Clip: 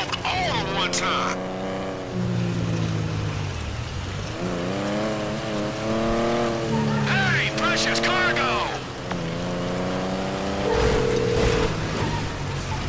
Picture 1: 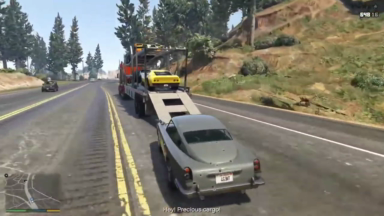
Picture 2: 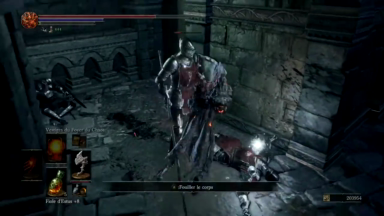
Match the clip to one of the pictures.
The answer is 1